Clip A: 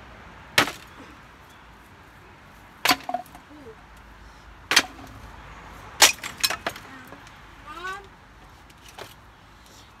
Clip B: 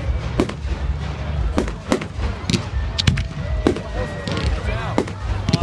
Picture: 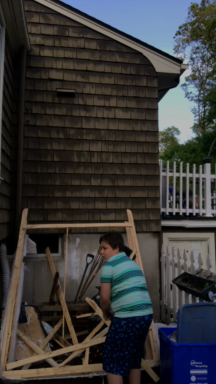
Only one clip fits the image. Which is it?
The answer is A